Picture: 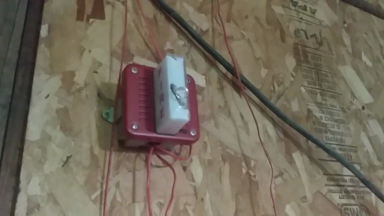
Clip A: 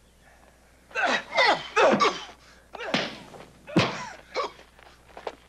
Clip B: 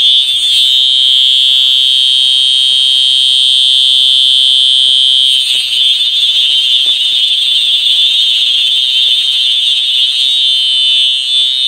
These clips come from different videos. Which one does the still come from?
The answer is B